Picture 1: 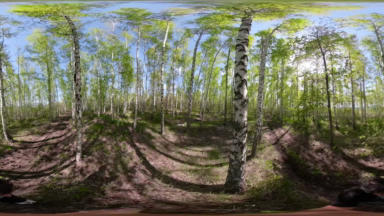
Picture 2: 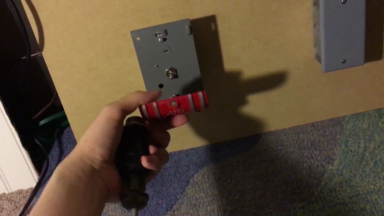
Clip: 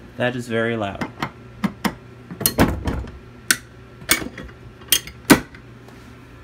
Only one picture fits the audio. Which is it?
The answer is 2